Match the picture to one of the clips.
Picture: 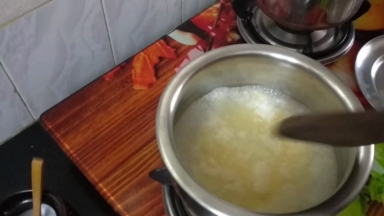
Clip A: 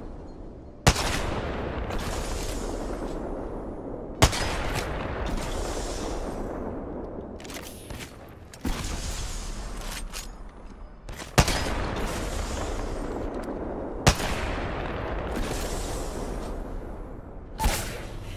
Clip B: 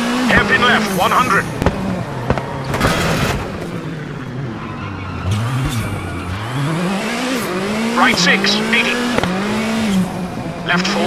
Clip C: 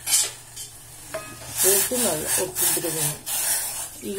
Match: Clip C